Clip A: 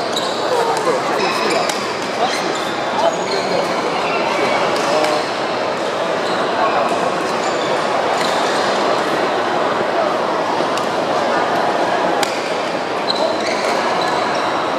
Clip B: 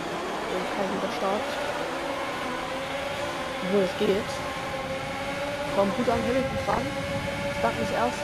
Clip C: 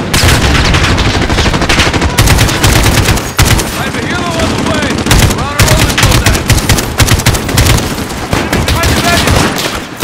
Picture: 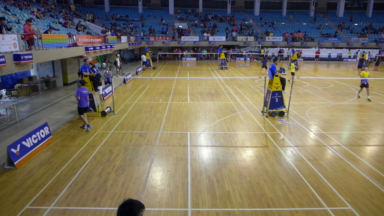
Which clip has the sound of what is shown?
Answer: A